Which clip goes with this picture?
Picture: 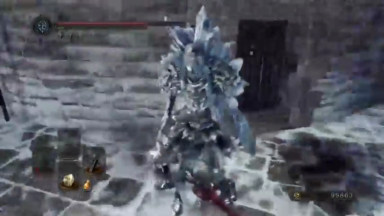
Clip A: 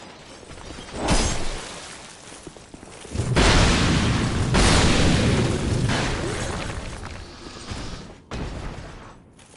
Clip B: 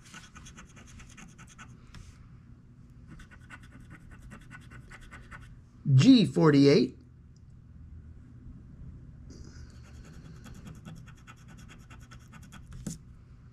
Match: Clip A